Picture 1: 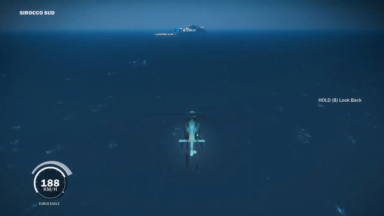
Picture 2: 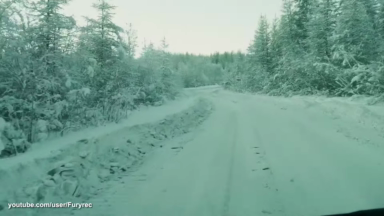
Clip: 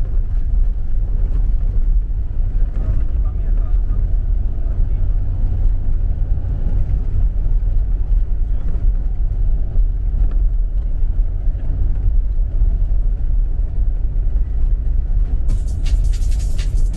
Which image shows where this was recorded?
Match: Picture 2